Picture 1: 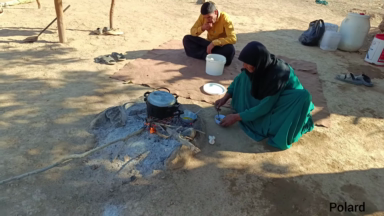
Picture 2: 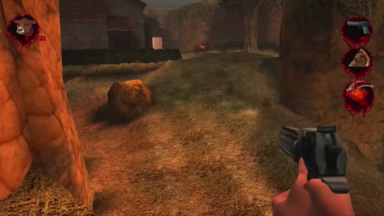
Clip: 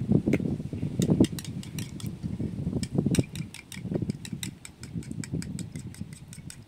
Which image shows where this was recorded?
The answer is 1